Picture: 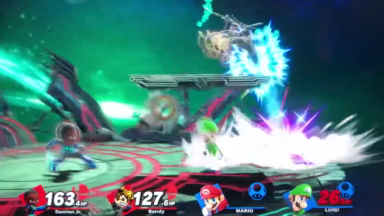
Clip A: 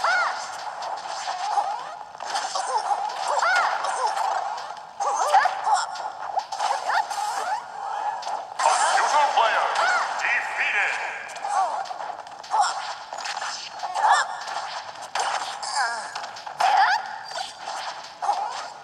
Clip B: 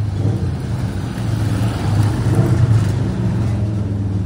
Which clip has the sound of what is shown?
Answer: A